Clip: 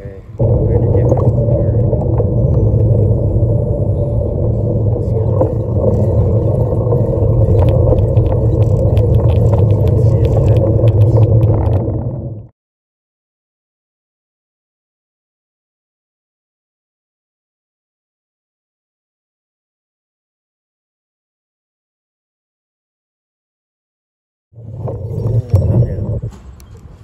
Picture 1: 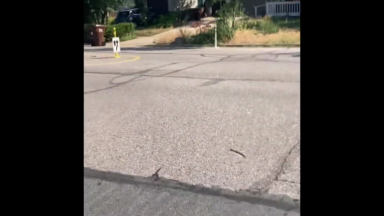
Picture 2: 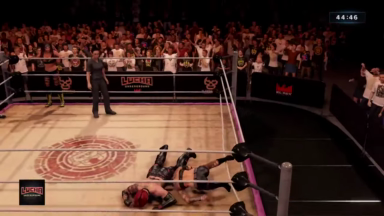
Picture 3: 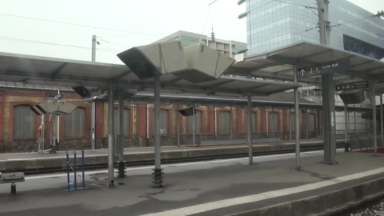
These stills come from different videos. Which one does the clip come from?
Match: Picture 1